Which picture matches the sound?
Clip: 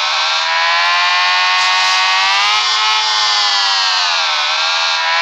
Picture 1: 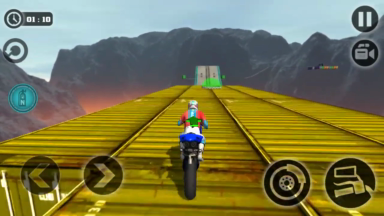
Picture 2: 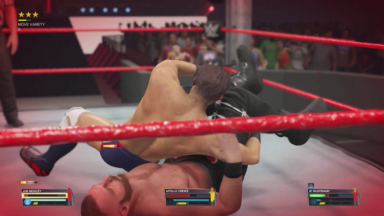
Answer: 1